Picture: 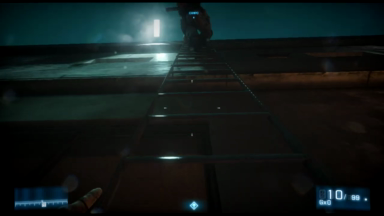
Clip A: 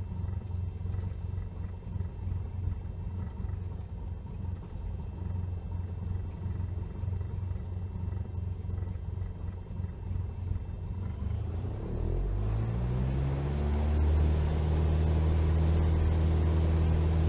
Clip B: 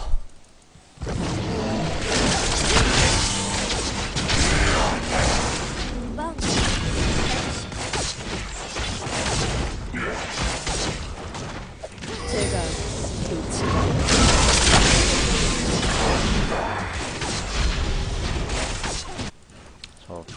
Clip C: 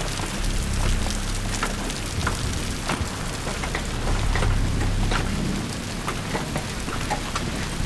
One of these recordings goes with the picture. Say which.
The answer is C